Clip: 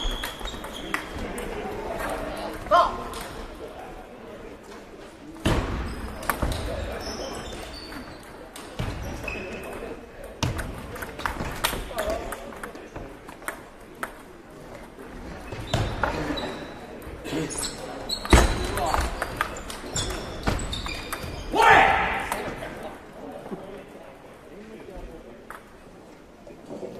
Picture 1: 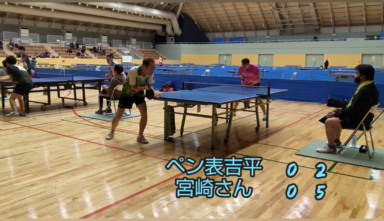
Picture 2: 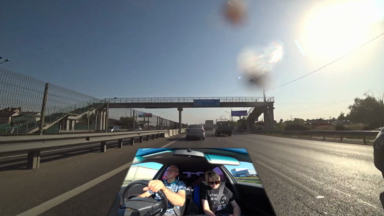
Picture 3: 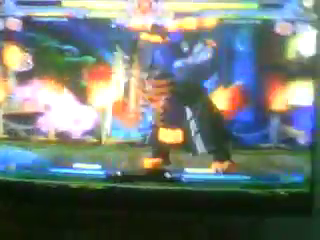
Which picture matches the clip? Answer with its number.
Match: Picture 1